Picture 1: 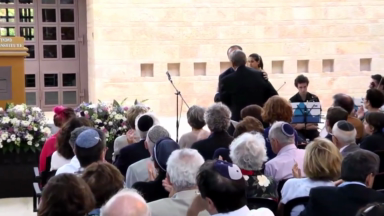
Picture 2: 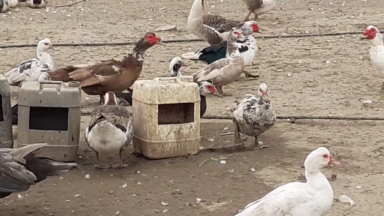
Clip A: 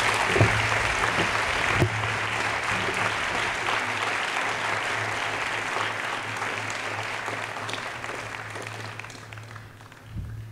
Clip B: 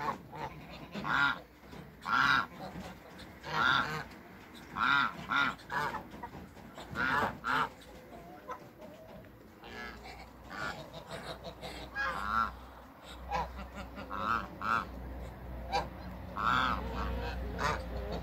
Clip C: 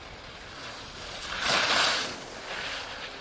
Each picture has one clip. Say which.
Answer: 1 A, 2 B